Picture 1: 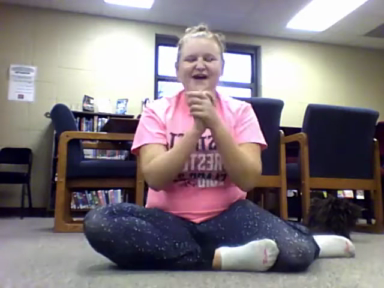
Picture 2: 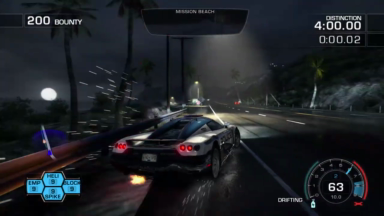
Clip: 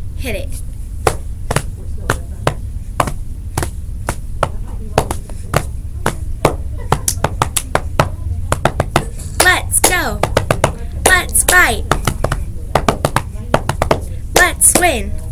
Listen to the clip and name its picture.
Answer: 1